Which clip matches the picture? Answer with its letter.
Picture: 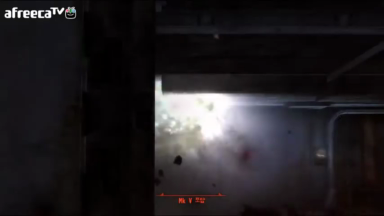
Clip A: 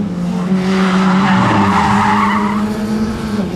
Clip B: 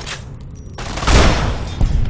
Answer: B